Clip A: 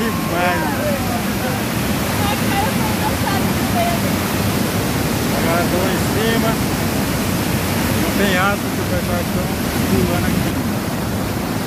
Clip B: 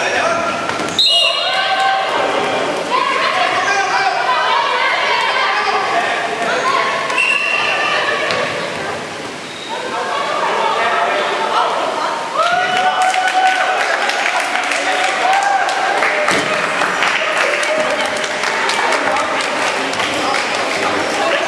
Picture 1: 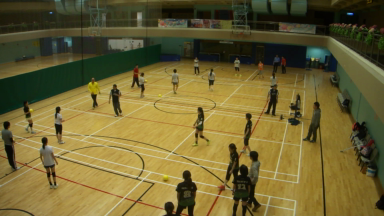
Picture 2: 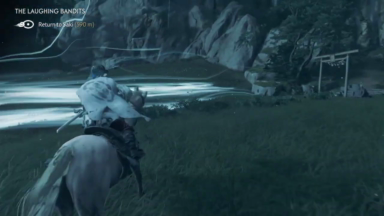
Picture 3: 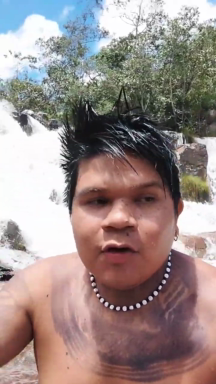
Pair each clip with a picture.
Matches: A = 3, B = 1